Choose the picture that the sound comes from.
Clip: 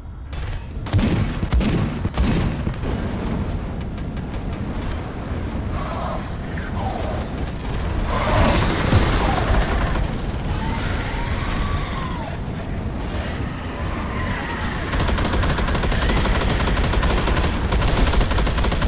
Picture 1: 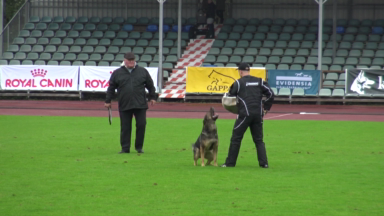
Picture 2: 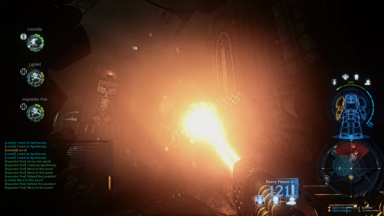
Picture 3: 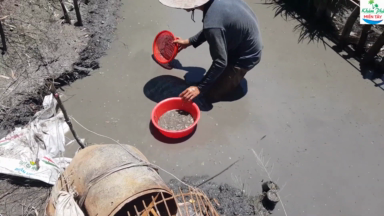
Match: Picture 2